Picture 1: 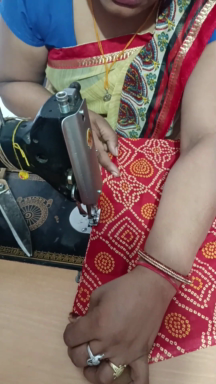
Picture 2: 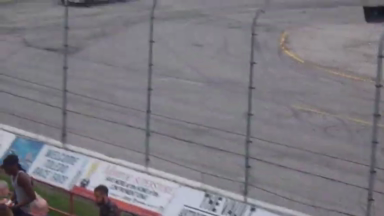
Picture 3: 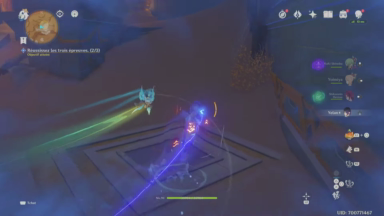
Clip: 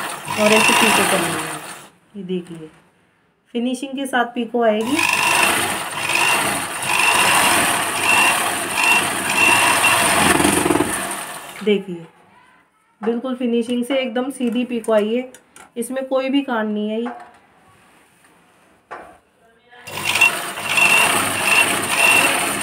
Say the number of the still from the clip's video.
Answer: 1